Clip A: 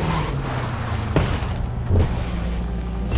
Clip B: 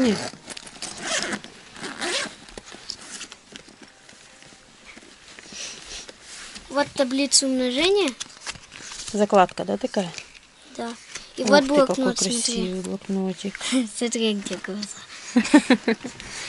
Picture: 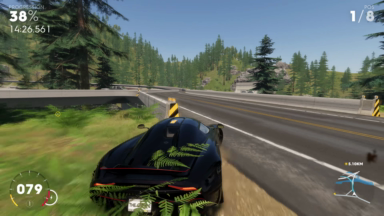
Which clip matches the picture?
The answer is A